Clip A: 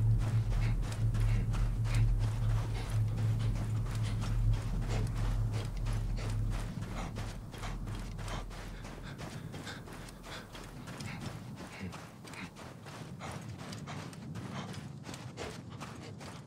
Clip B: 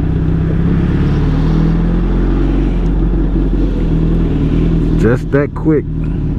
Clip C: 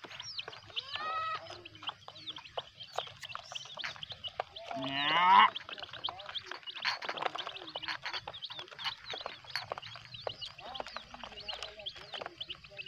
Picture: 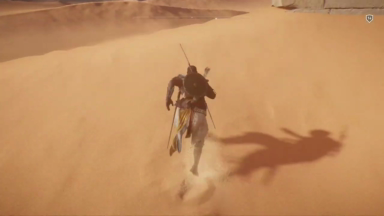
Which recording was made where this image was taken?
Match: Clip A